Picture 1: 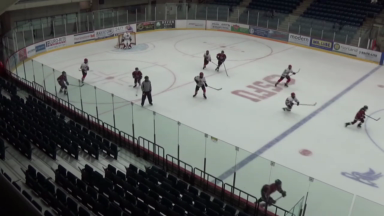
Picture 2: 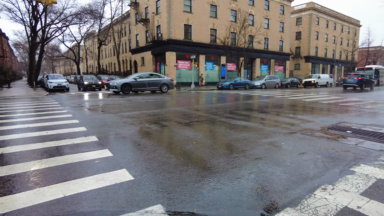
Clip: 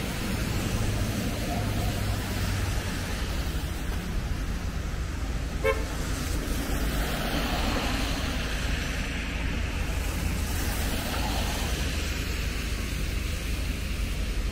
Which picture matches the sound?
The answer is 2